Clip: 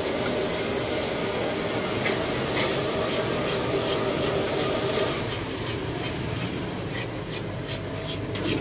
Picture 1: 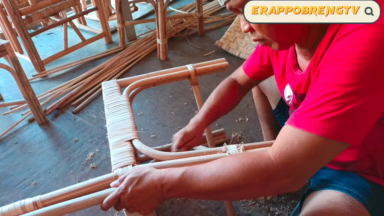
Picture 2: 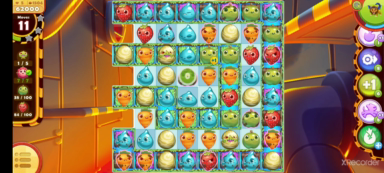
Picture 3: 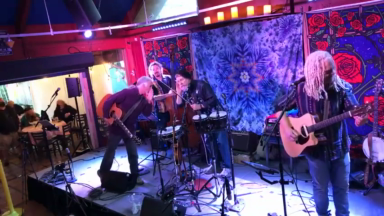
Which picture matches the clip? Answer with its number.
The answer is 1